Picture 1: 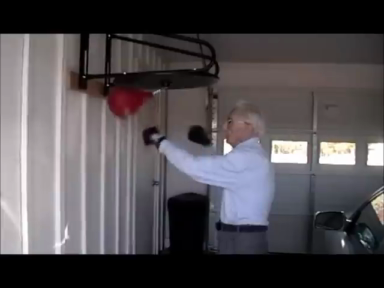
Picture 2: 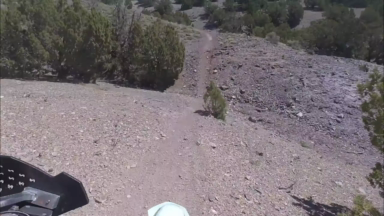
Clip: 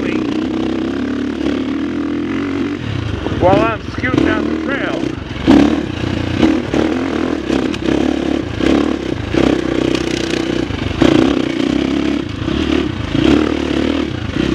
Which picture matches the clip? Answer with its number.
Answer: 2